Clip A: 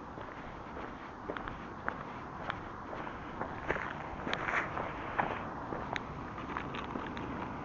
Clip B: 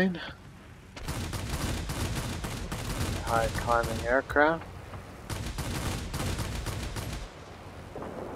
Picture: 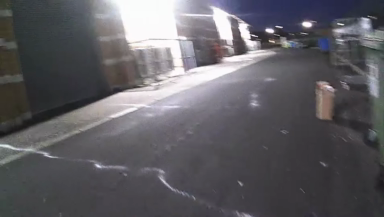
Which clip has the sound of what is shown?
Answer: A